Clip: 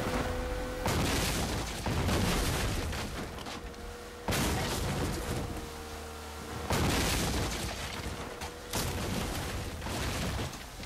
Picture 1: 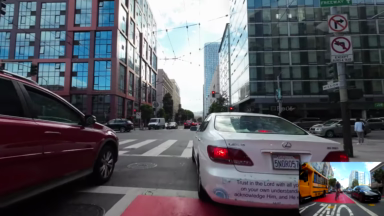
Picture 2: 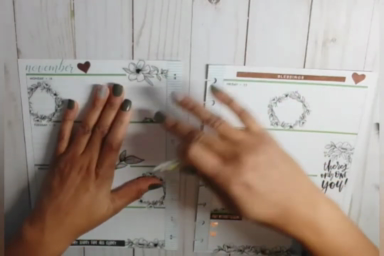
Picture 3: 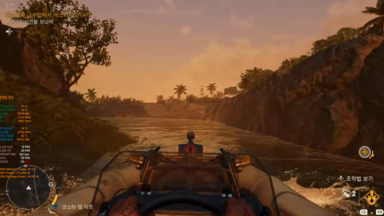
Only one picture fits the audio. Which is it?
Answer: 3